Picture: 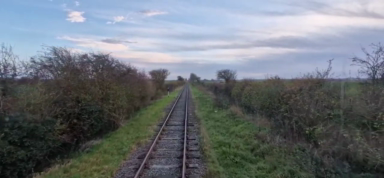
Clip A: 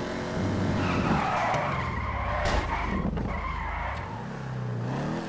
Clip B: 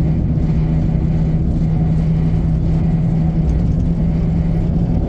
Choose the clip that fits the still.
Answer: B